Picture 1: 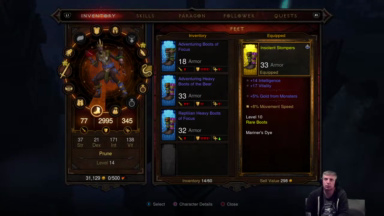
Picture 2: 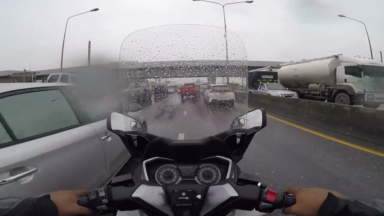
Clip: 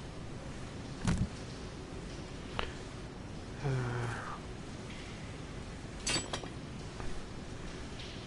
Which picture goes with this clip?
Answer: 1